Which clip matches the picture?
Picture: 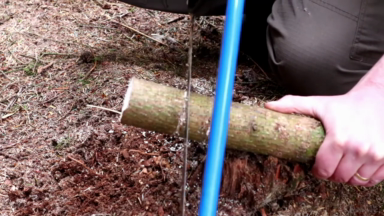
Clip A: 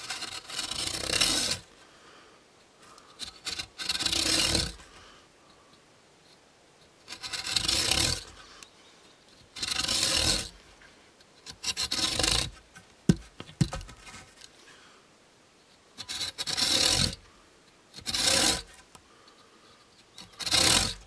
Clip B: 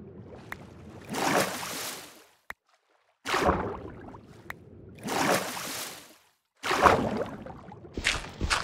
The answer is A